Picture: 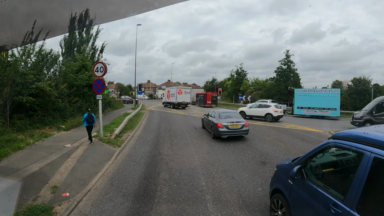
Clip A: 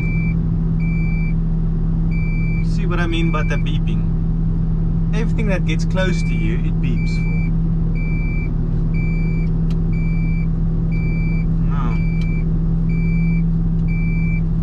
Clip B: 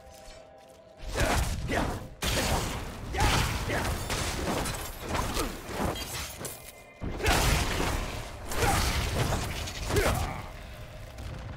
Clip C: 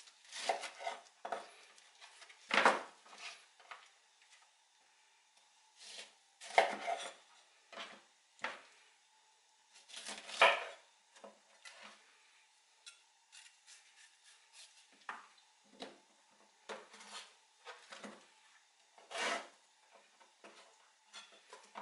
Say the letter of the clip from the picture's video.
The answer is A